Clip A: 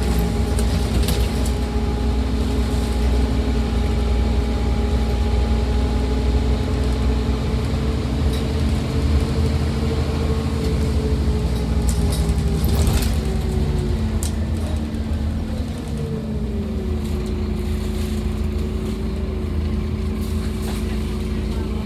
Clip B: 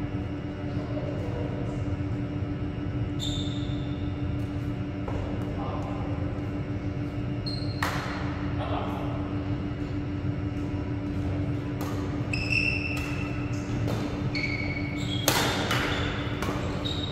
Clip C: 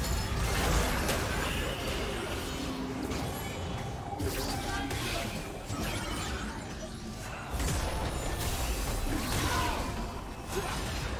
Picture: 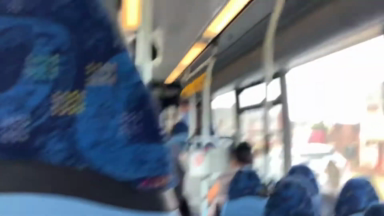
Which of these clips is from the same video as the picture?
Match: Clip A